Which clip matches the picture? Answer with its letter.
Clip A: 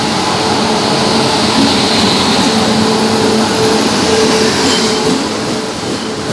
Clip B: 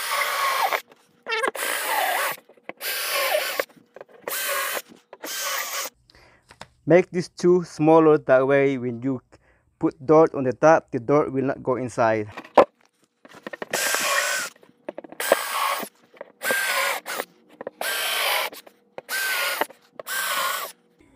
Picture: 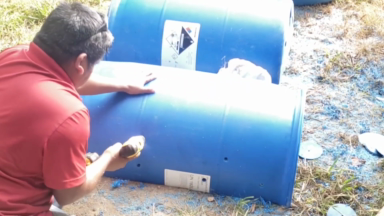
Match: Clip B